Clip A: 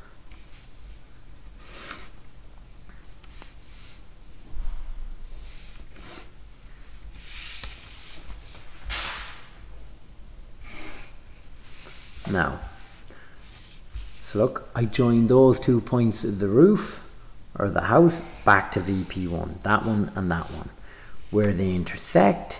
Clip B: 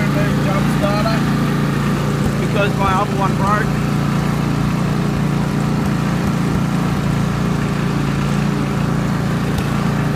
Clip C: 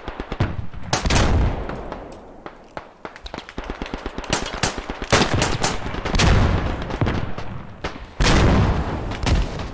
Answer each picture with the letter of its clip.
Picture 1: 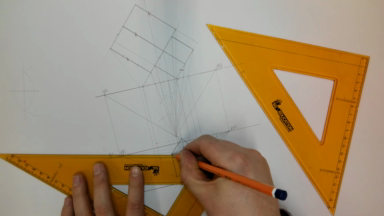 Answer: A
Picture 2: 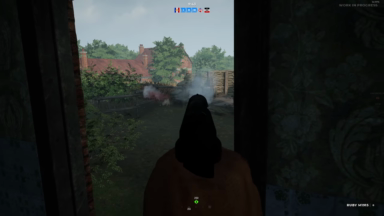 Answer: C